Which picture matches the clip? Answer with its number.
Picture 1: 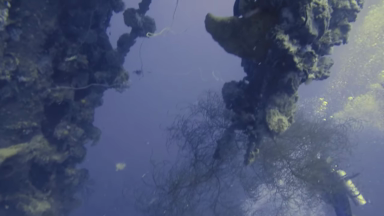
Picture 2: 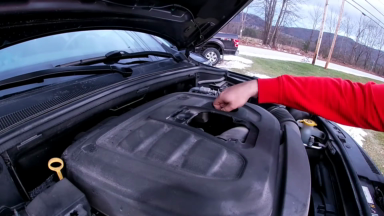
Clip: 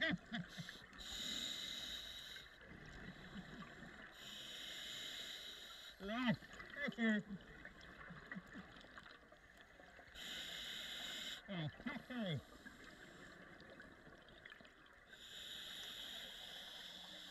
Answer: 1